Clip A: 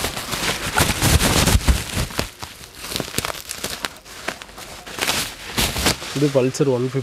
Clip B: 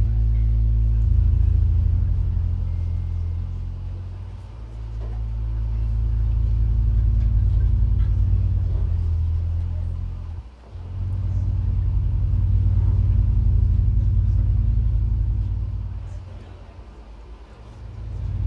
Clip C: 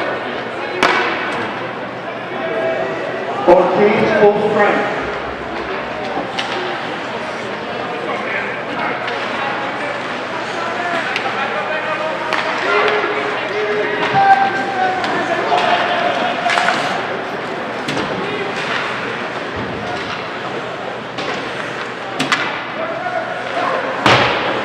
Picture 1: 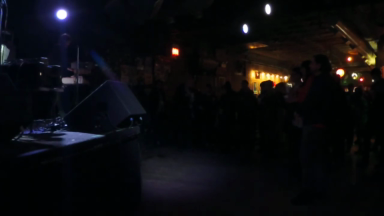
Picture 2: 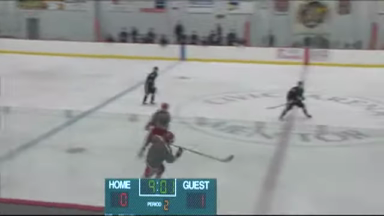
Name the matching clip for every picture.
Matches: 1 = B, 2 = C